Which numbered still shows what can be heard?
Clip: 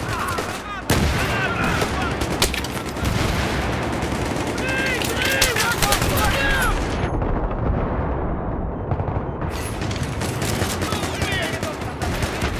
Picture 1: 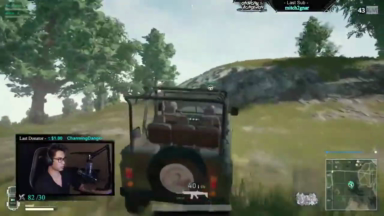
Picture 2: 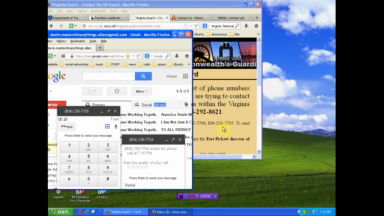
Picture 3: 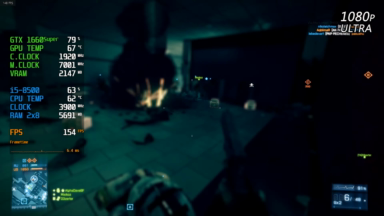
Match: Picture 3